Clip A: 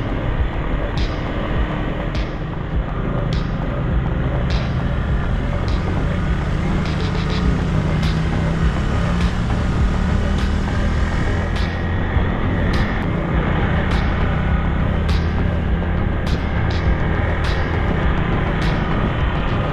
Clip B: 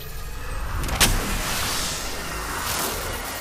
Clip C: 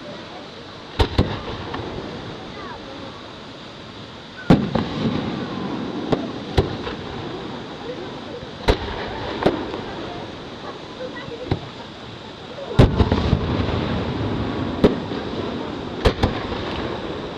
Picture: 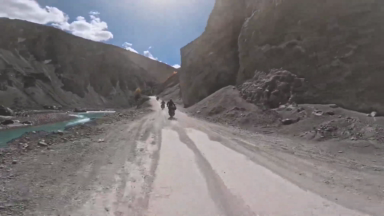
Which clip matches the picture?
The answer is A